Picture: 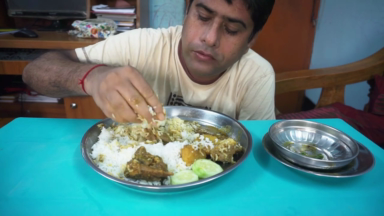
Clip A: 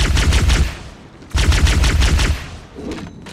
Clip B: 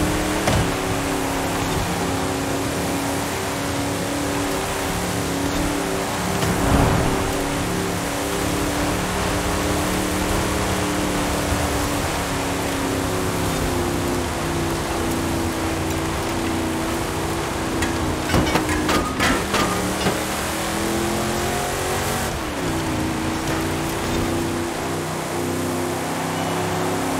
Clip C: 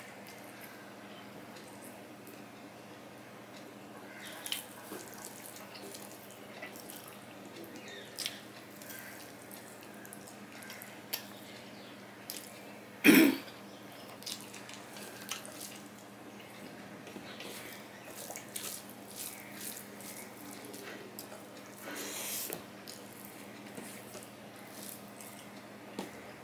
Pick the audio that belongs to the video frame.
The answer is C